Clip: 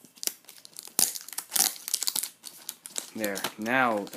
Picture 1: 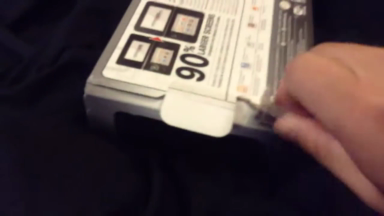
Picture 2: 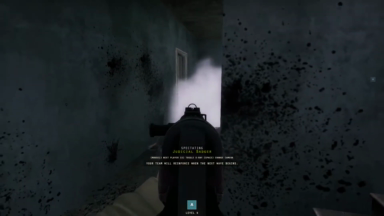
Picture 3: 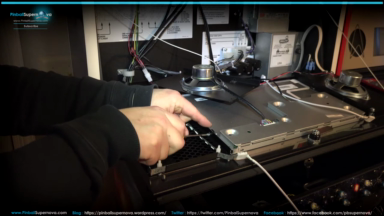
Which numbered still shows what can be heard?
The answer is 1